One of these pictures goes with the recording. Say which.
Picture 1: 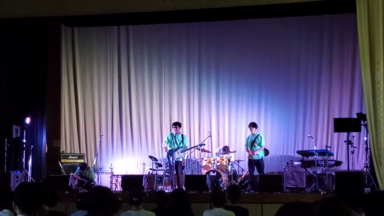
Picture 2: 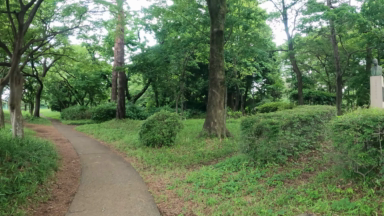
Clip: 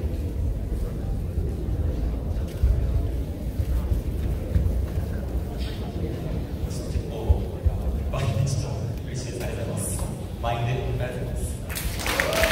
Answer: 1